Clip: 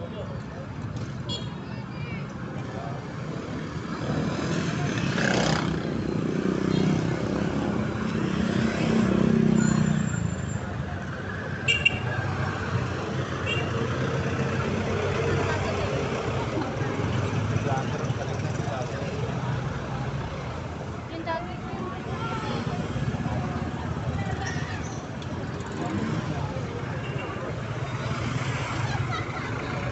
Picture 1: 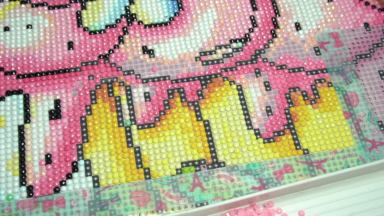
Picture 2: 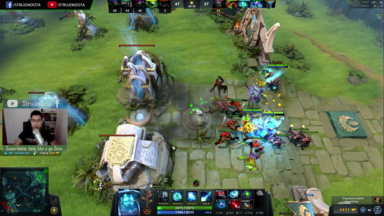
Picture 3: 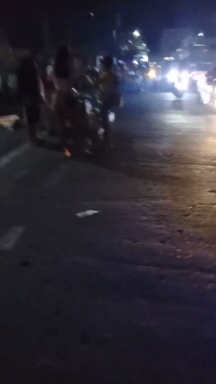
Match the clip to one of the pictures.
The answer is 3